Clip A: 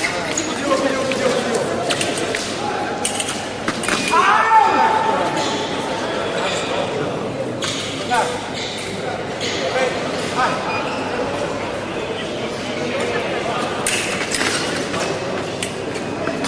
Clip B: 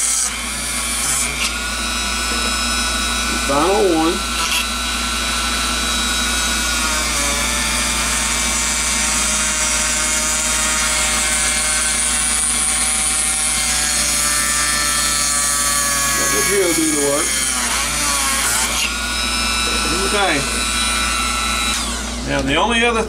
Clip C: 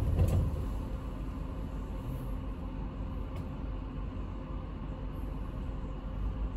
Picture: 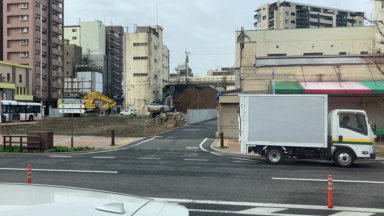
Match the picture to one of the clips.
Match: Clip C